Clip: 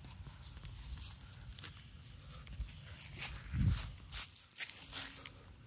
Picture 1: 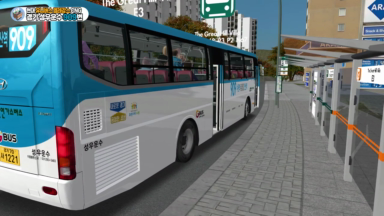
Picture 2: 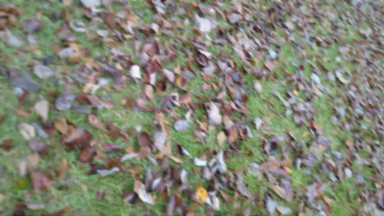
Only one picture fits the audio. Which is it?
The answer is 2